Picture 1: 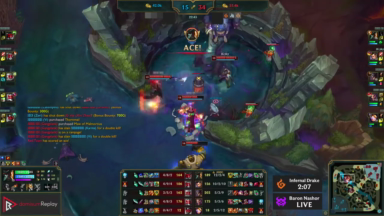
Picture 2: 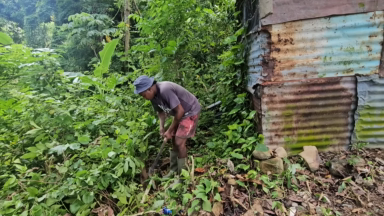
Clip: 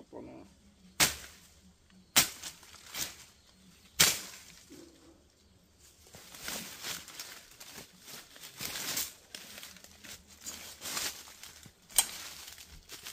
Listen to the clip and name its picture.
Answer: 2